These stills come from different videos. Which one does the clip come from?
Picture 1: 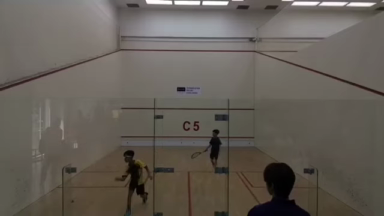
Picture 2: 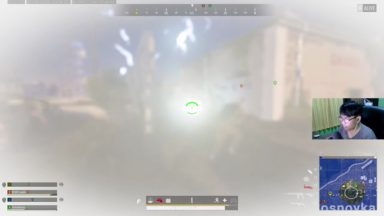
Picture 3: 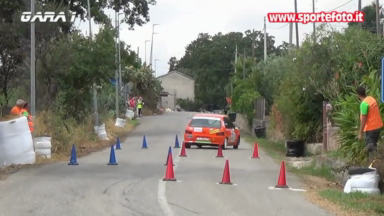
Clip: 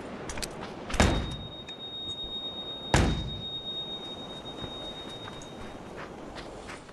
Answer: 2